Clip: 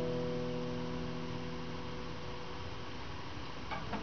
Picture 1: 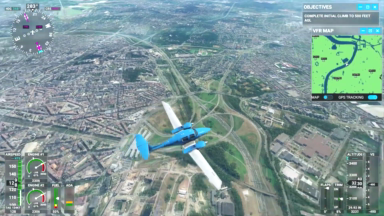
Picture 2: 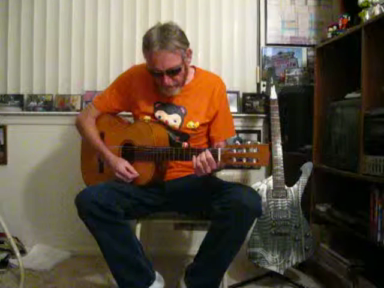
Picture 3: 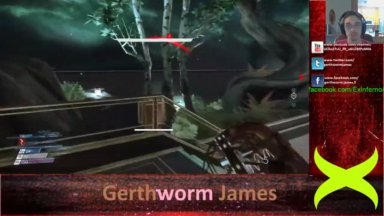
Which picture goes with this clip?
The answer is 2